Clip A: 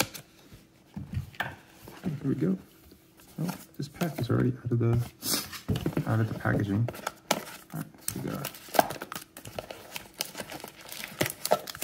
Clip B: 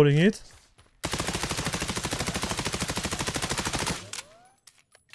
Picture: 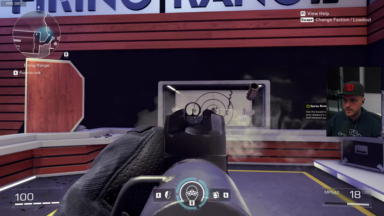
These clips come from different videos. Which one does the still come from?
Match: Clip B